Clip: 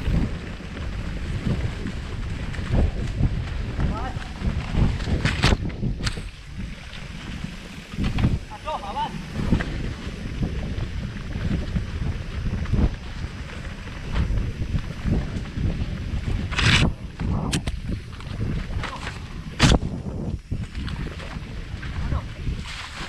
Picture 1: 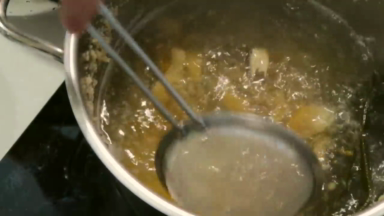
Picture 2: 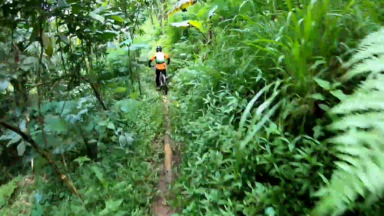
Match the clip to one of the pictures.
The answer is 2